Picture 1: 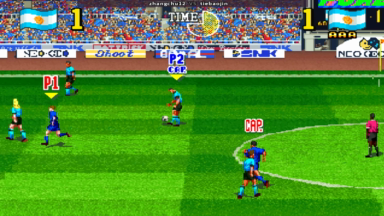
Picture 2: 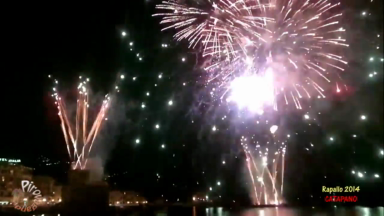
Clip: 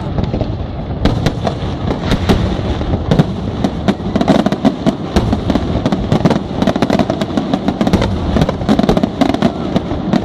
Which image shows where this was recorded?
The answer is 2